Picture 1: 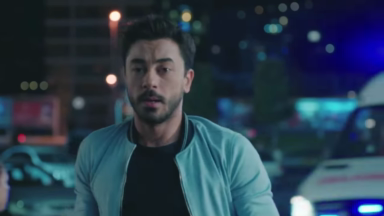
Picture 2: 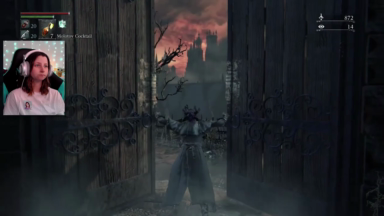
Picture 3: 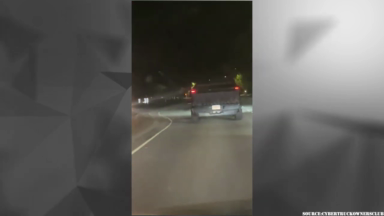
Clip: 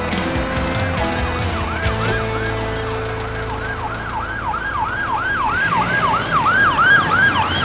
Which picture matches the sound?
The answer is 1